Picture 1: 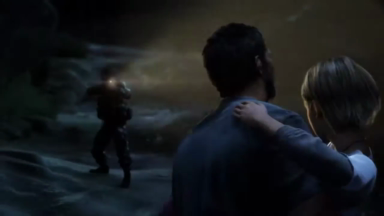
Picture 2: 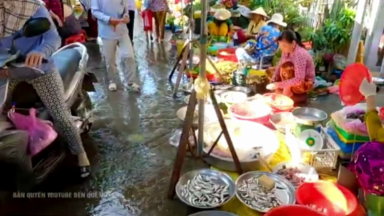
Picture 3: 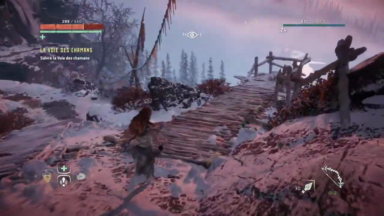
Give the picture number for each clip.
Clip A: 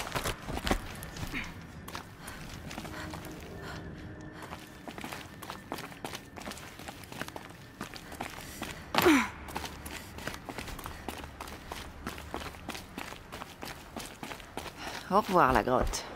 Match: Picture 3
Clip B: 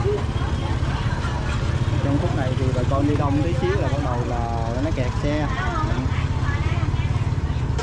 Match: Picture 2